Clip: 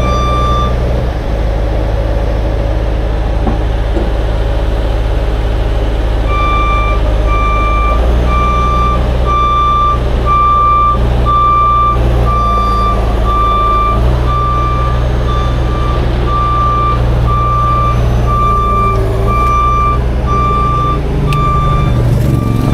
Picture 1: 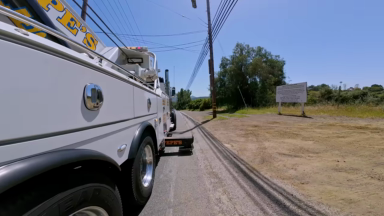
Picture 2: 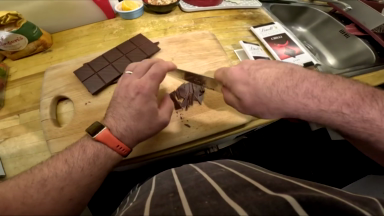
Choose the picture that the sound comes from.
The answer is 1